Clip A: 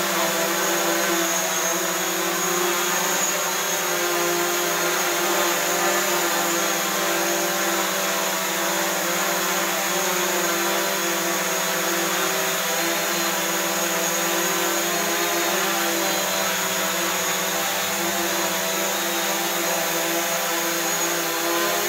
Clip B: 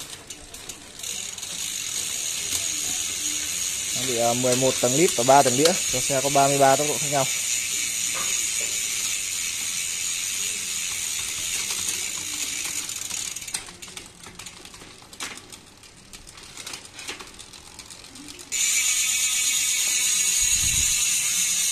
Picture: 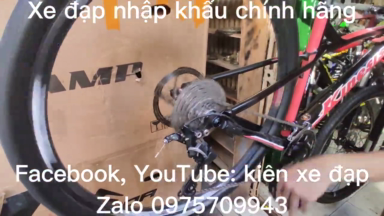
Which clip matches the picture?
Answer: B